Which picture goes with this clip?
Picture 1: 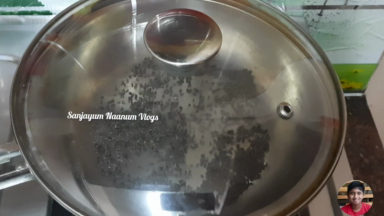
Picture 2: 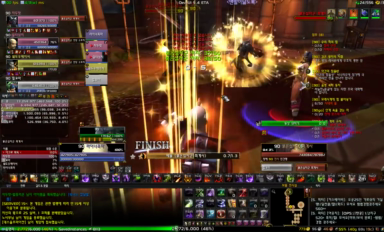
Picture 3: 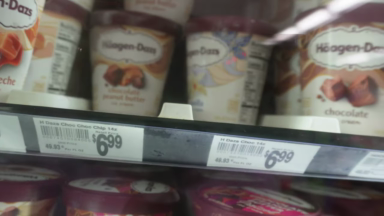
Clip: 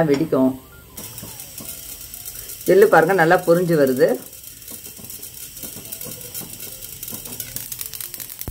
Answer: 1